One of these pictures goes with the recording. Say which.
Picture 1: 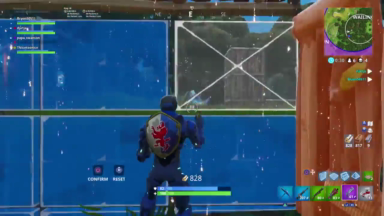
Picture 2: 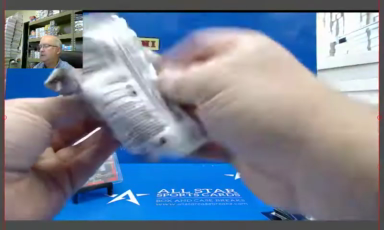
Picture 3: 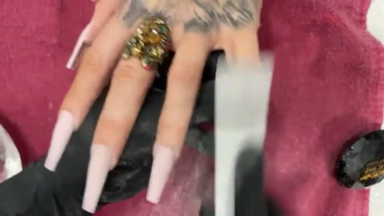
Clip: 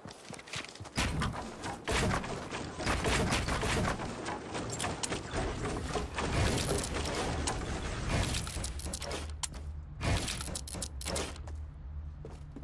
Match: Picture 1